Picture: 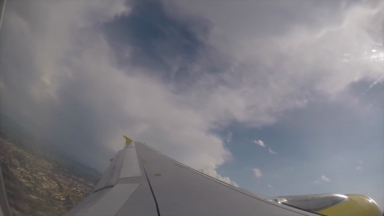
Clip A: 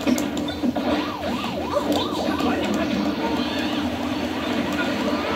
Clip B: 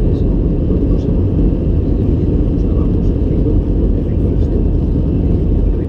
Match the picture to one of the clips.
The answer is B